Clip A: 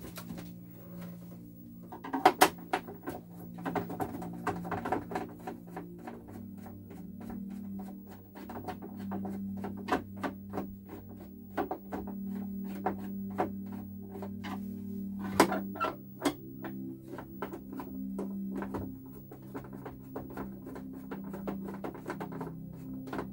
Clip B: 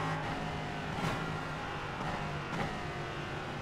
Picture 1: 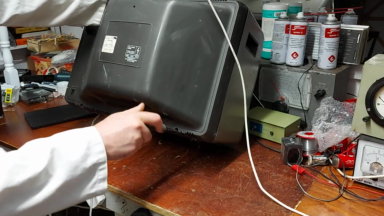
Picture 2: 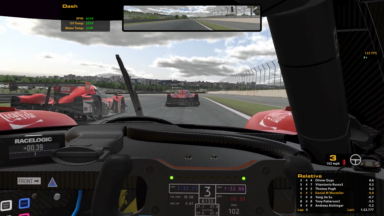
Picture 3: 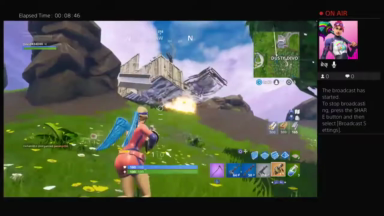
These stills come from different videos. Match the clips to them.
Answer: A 1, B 2